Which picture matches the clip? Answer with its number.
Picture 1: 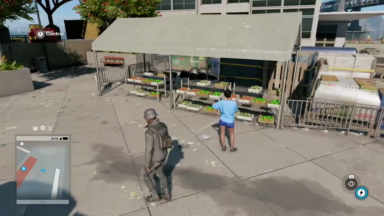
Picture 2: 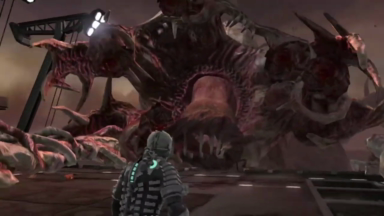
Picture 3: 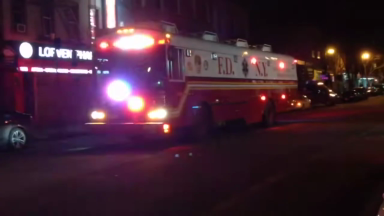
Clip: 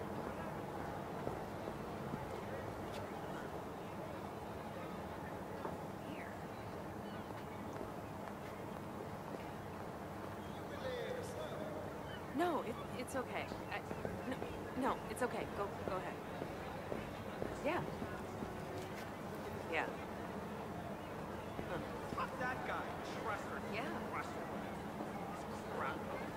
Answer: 1